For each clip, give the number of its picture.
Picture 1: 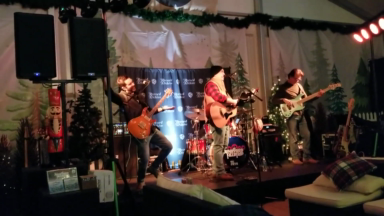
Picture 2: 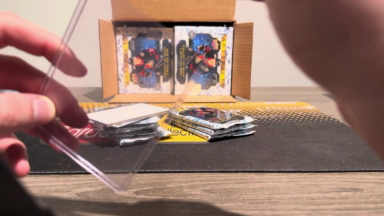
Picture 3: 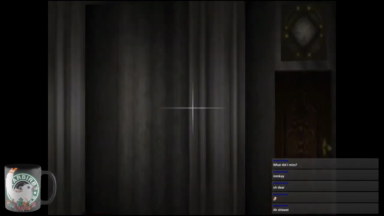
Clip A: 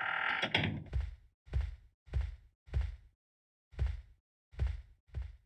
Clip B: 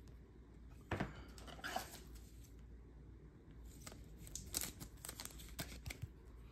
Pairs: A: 3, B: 2